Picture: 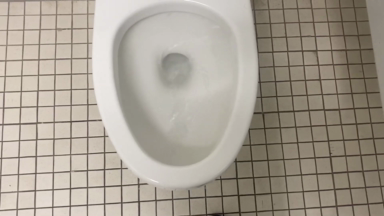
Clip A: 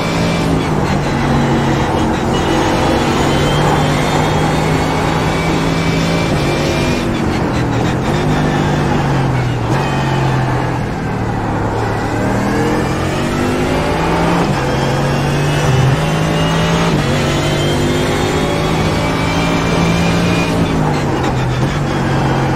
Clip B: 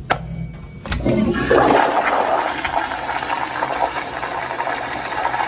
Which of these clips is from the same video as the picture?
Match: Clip B